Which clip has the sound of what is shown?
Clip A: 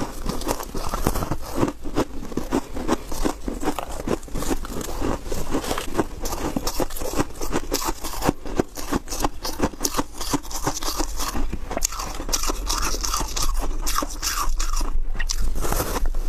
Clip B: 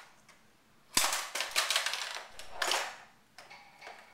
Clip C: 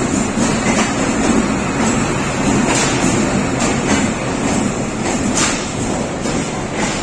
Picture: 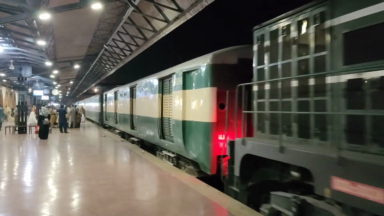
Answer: C